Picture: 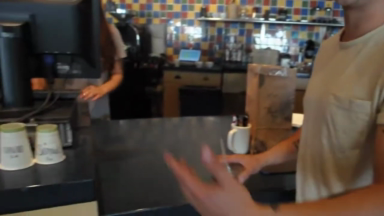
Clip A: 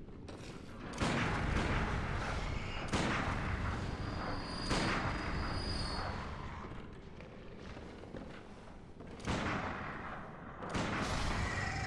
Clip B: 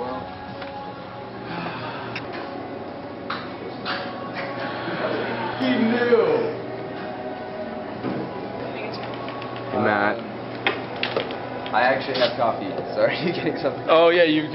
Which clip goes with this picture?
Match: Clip B